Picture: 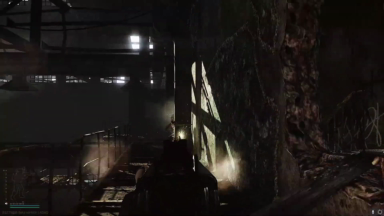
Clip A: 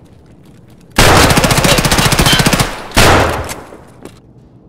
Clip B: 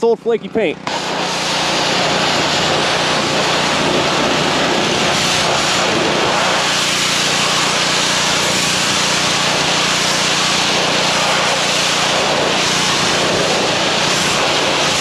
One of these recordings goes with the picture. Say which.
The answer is A